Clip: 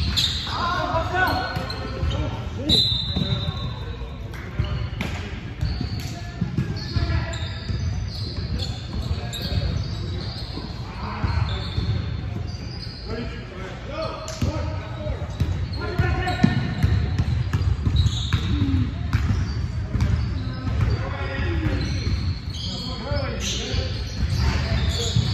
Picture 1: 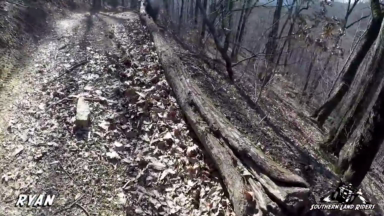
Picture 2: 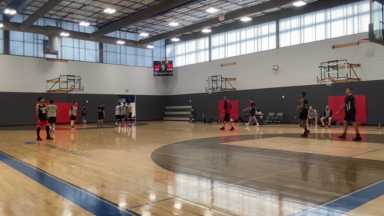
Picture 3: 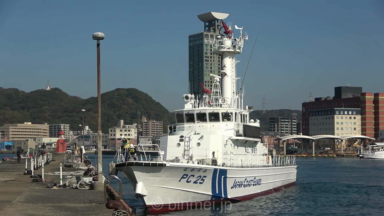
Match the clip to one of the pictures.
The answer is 2